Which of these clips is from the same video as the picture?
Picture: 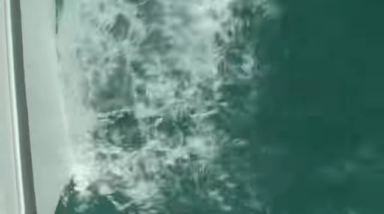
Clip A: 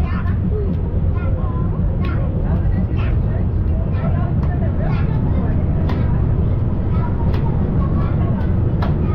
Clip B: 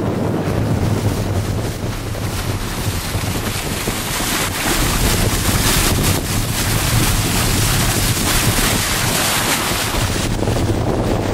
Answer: B